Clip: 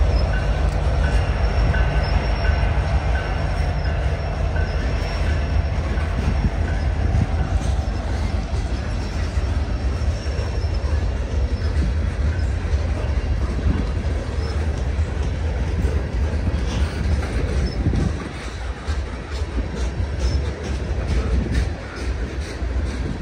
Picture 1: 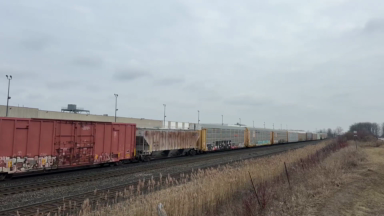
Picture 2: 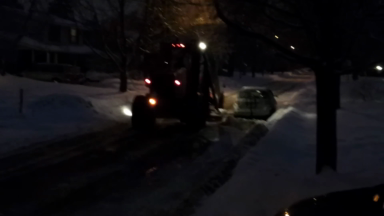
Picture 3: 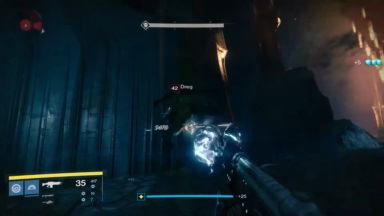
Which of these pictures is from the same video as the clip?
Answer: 1